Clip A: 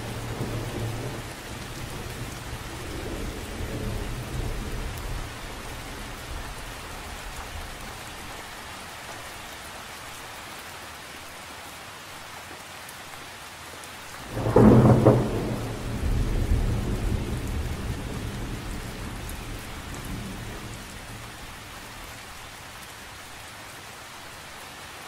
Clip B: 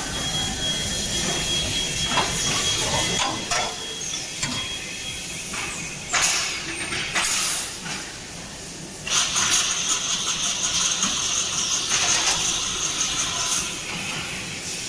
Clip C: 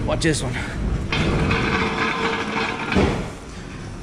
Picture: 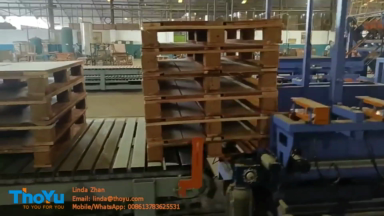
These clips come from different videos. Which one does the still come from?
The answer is B